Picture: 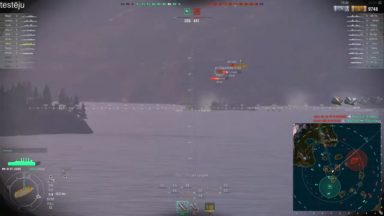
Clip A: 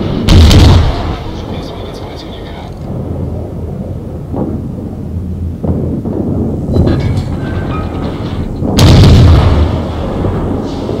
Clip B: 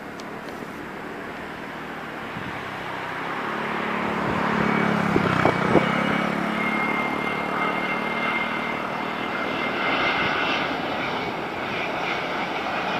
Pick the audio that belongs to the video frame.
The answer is A